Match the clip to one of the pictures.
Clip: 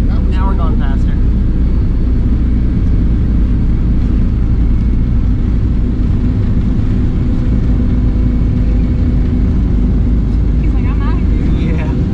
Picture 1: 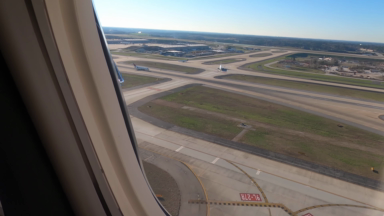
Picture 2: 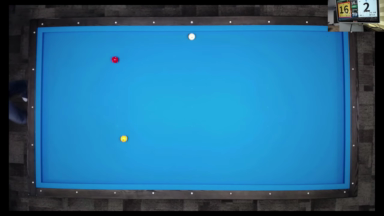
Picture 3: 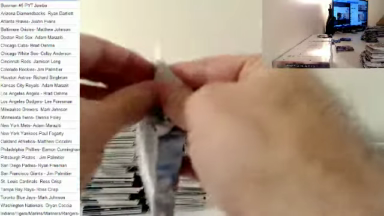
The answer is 1